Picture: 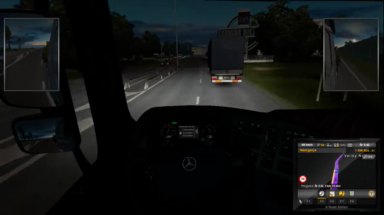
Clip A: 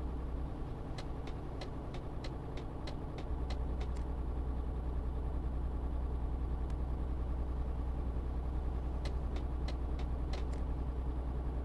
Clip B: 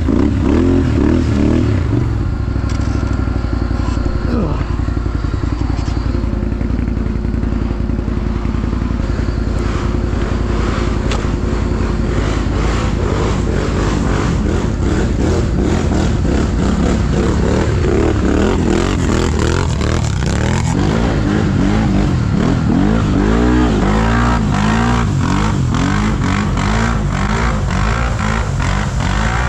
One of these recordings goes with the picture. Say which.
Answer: A